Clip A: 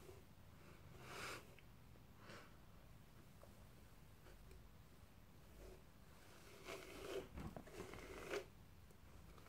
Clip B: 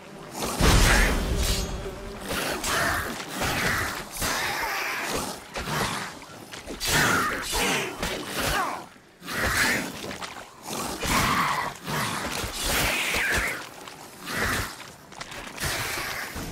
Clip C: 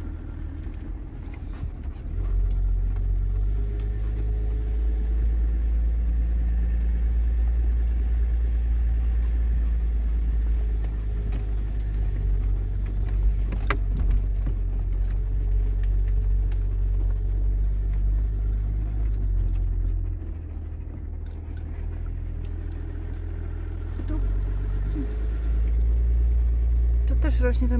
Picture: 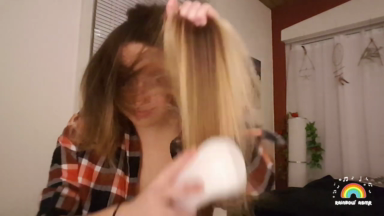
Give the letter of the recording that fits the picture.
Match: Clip A